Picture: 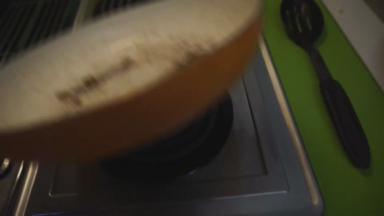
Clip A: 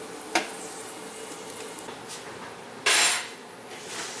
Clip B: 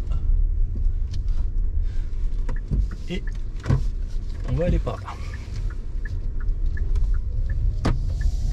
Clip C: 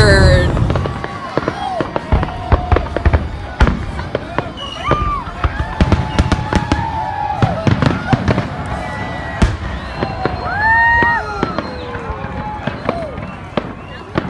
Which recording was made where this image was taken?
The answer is A